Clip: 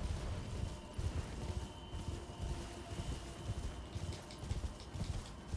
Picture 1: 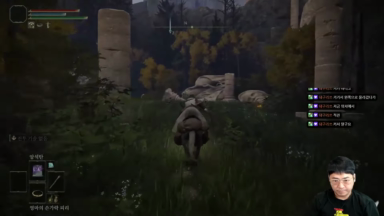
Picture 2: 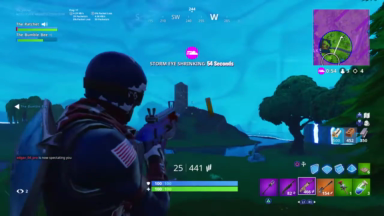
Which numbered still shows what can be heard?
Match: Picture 1